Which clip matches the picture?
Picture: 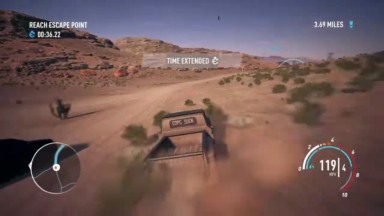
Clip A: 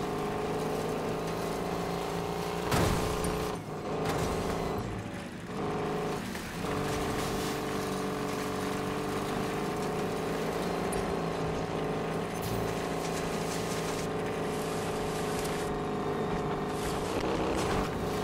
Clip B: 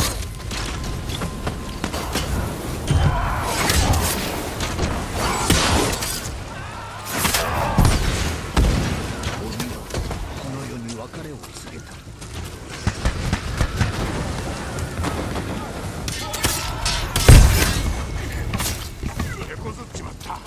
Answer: A